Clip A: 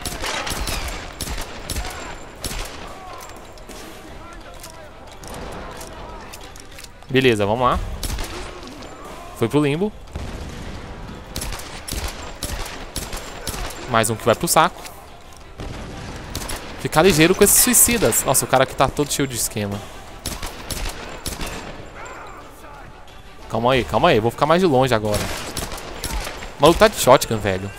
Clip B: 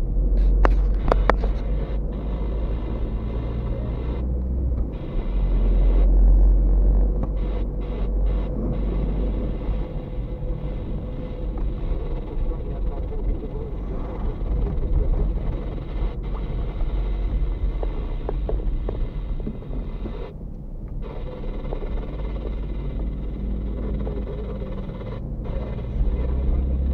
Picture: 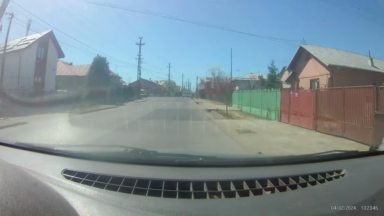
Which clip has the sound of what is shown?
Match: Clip B